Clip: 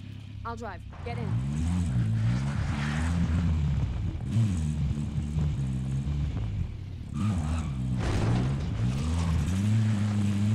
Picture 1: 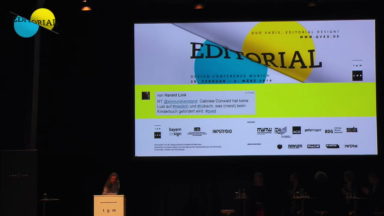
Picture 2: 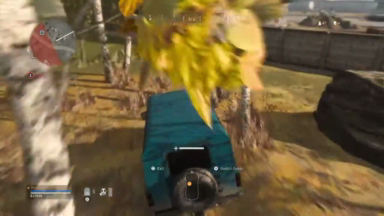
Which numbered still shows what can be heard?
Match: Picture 2